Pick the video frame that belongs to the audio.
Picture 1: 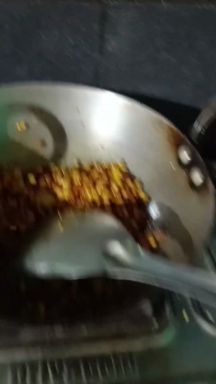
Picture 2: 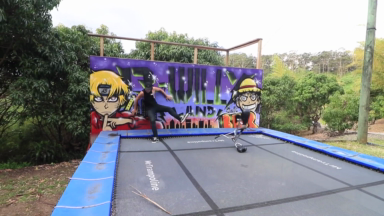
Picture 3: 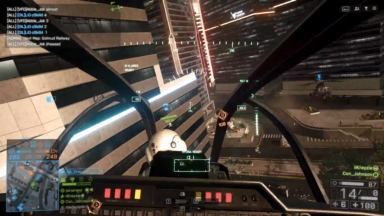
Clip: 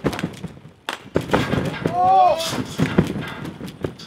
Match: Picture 2